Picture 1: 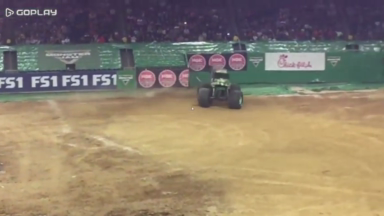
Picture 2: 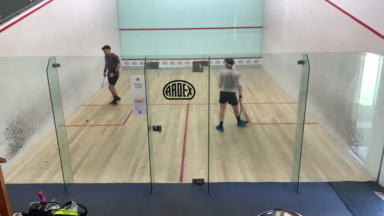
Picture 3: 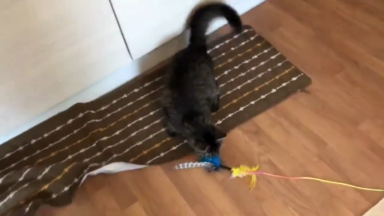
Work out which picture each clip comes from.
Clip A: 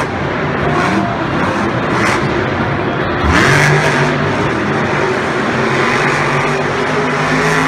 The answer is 1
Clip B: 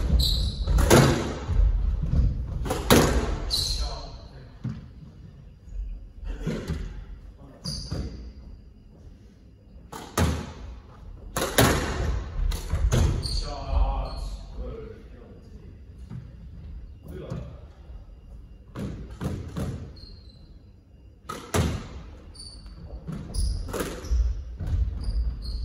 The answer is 2